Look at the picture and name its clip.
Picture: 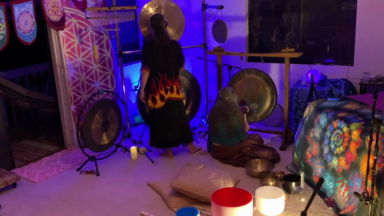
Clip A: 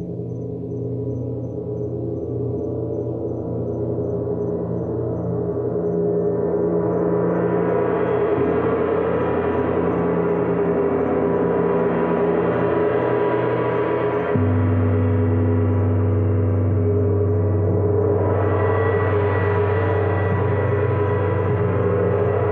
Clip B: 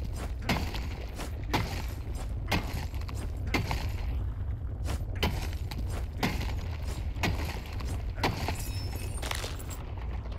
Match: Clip A